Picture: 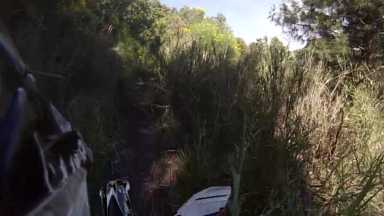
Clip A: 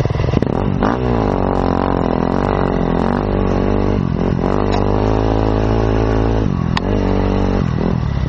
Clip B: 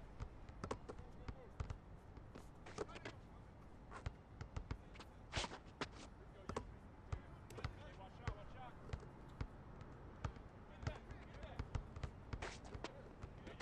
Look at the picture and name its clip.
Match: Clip A